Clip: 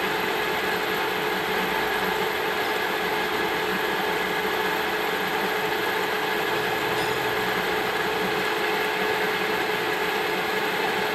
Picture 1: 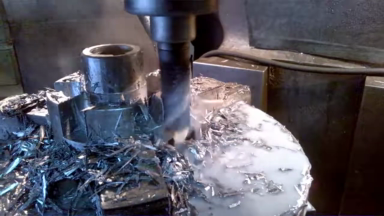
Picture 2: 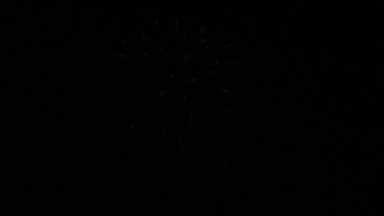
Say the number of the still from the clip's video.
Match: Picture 1